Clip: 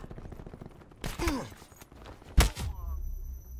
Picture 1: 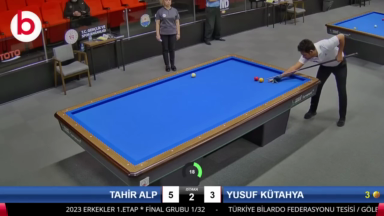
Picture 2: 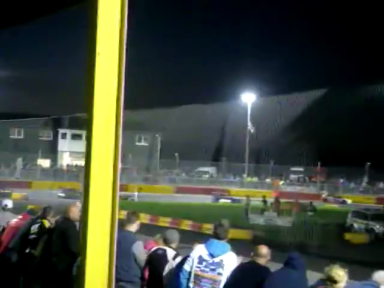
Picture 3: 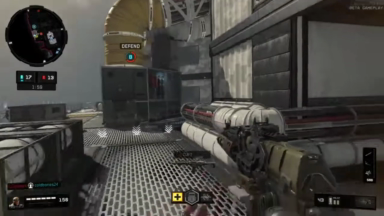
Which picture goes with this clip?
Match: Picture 3